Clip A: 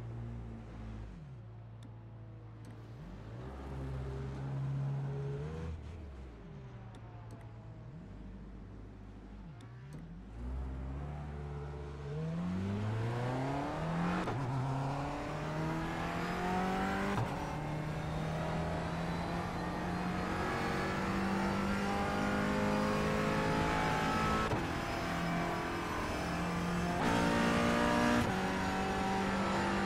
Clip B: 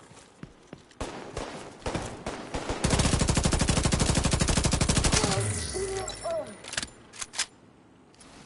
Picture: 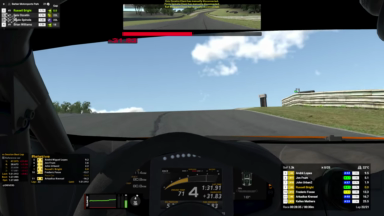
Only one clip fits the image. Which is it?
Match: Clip A